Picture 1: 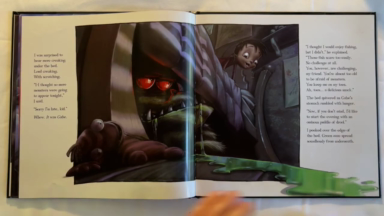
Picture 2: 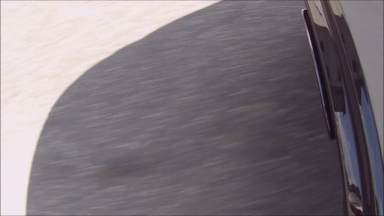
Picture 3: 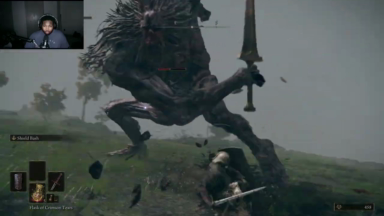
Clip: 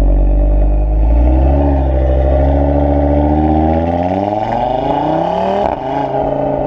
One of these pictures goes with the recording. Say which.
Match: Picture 2